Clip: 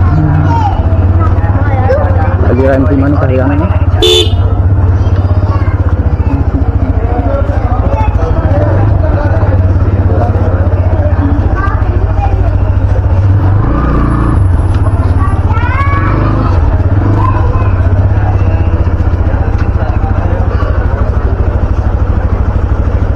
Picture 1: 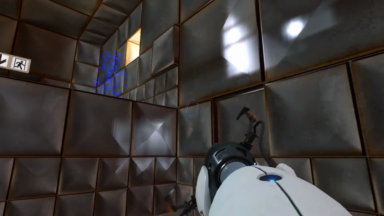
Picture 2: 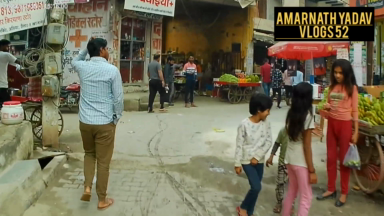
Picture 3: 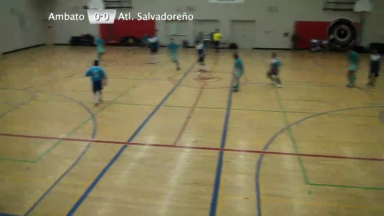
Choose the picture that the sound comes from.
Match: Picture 2